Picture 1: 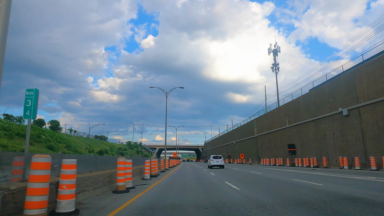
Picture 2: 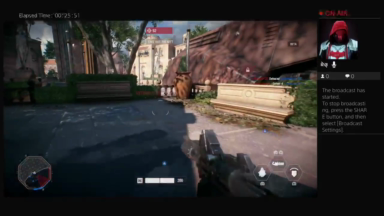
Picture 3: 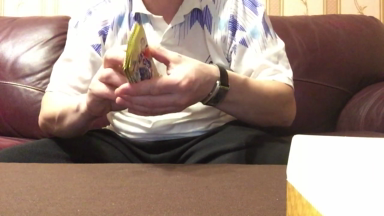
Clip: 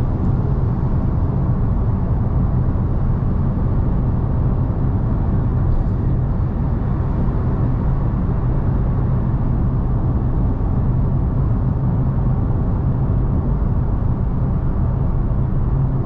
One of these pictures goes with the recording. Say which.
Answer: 1